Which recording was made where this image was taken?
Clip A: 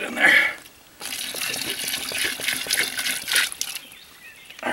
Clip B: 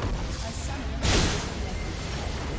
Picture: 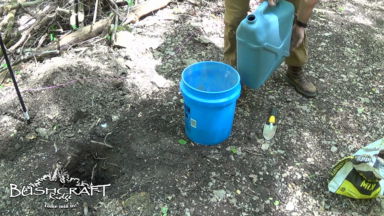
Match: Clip A